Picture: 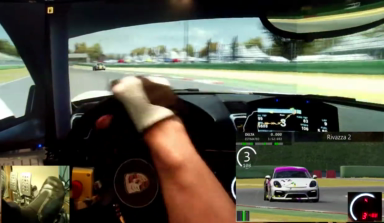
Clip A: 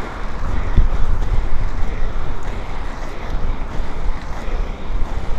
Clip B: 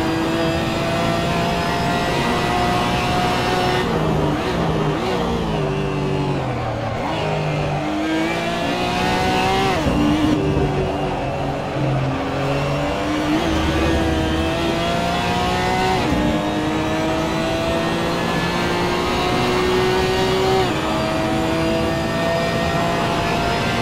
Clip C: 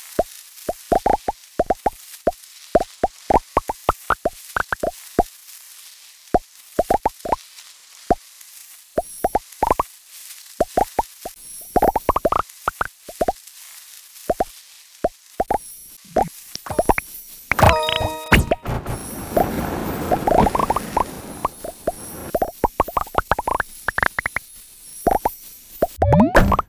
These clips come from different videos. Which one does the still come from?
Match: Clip B